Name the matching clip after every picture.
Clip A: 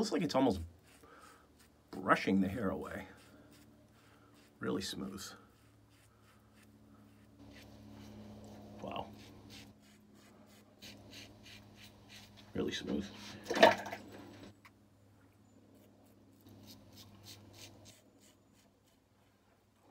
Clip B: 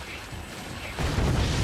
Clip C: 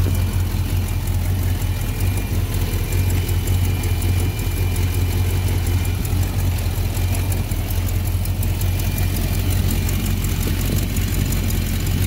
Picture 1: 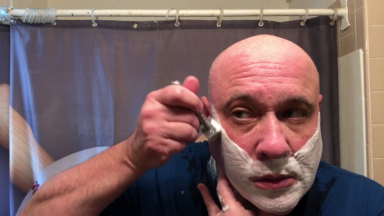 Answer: A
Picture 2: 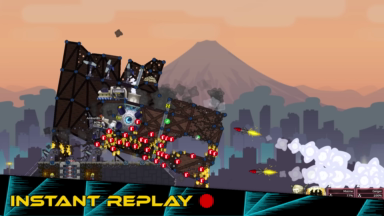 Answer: B